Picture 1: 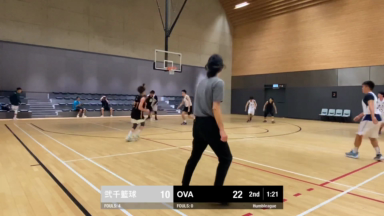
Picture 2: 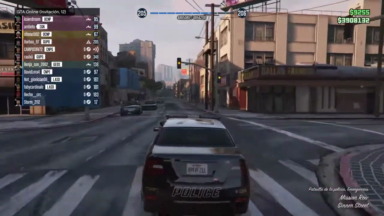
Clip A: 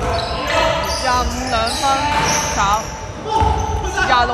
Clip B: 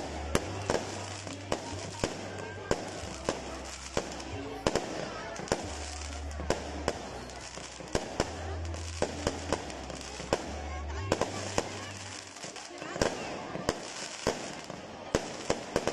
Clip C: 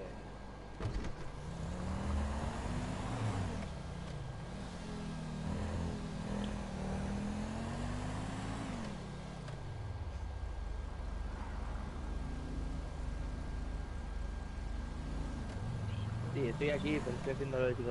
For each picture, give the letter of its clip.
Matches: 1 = A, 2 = C